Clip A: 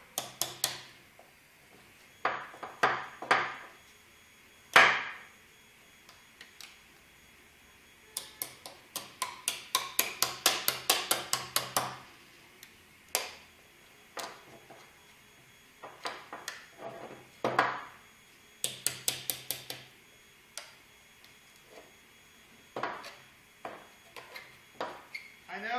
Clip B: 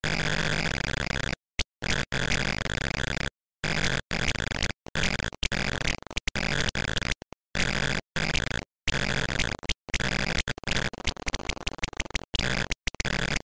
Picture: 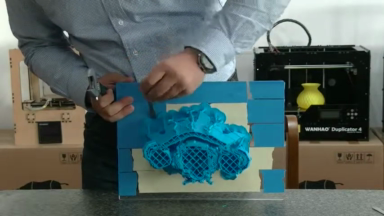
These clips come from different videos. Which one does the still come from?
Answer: A